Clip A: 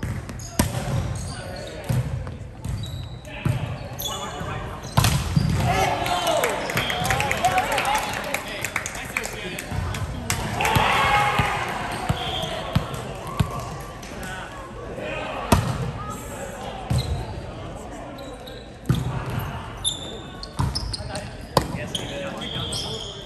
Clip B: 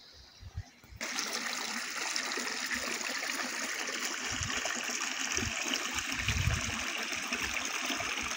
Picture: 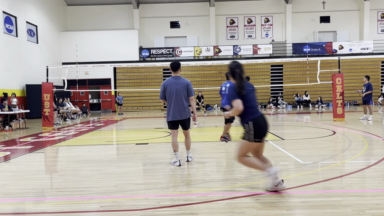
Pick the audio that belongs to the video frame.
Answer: A